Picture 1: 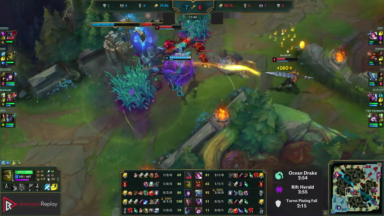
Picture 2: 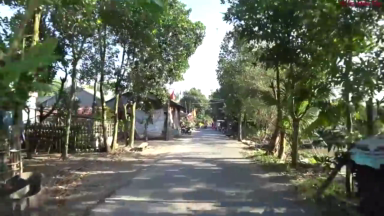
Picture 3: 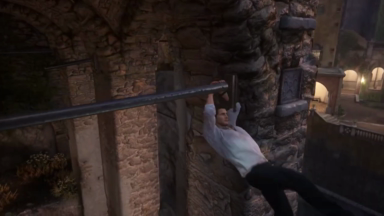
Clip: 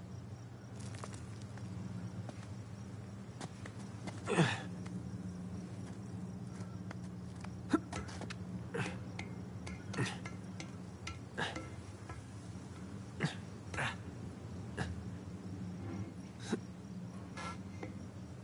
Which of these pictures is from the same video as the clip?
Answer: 3